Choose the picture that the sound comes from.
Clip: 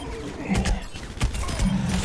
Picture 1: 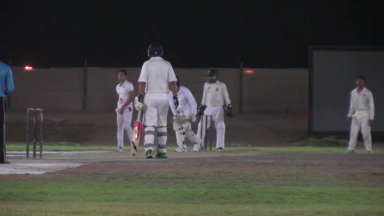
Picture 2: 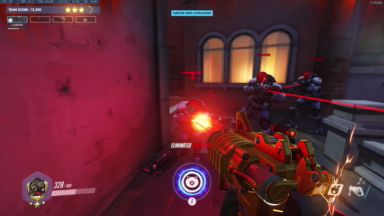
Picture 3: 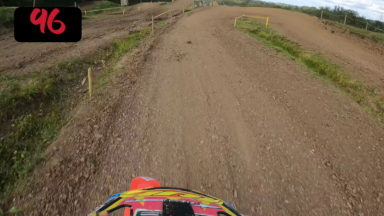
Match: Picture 2